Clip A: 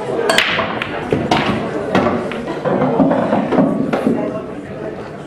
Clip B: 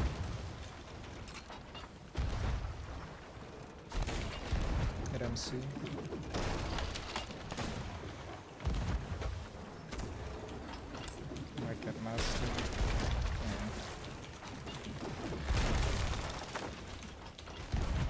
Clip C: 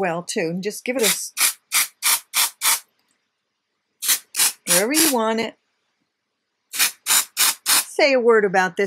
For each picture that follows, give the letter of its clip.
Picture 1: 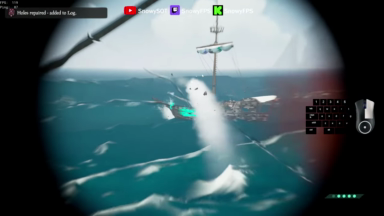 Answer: B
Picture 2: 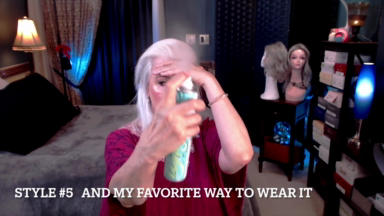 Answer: C